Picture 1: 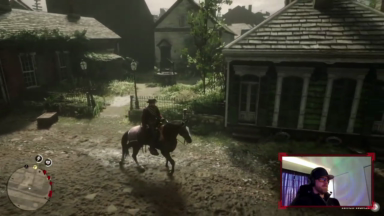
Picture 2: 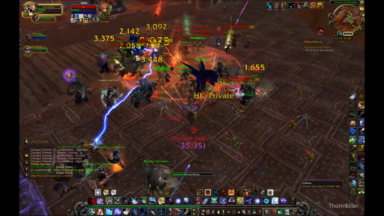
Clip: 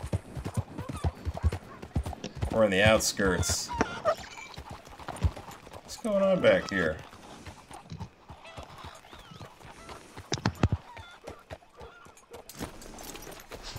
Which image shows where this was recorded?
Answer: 1